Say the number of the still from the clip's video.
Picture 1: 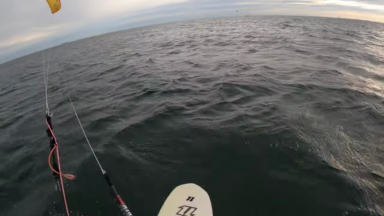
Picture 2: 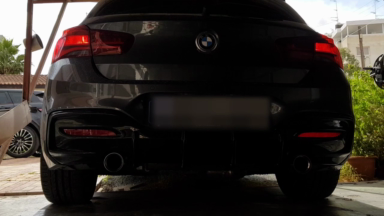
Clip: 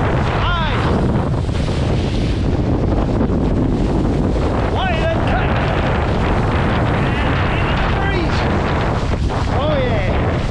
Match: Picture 1